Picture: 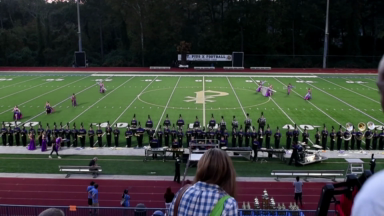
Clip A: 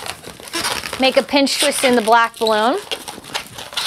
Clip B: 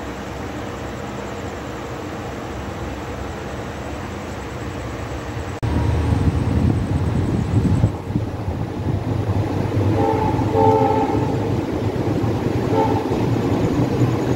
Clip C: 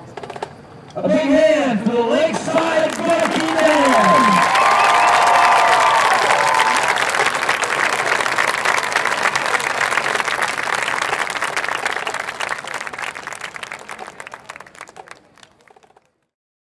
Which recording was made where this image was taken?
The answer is C